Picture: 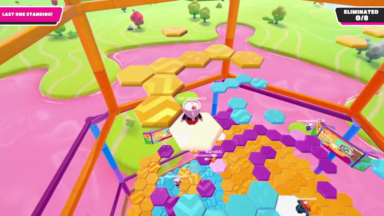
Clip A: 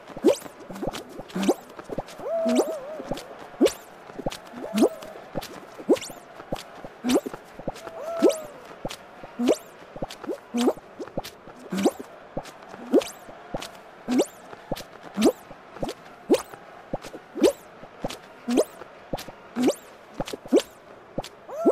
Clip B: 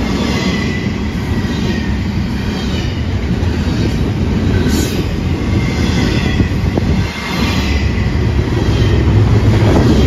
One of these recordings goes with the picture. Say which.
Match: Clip A